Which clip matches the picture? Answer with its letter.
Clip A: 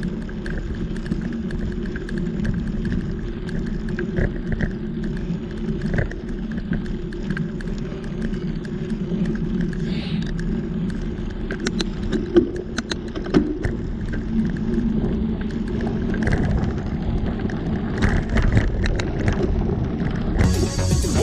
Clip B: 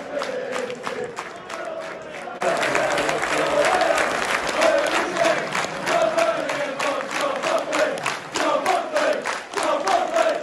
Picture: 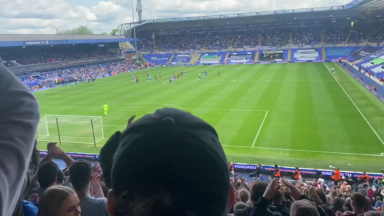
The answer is B